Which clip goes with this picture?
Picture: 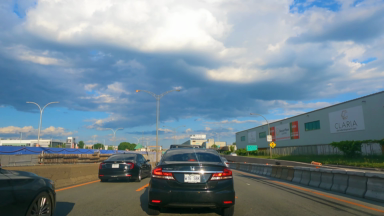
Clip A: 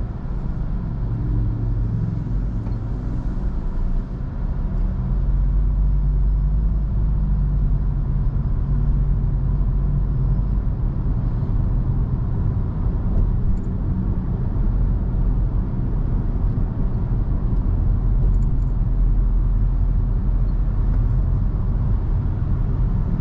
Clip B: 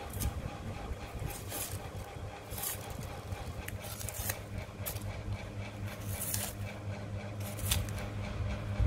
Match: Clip A